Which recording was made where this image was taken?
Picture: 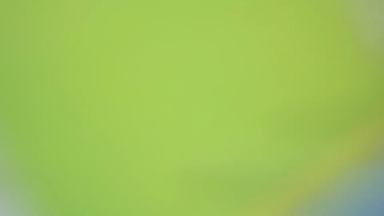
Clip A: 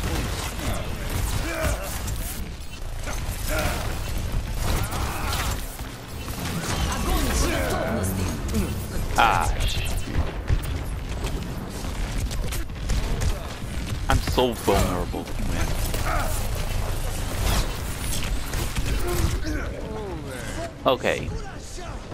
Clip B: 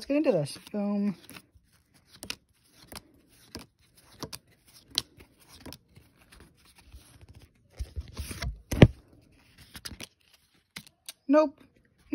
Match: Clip B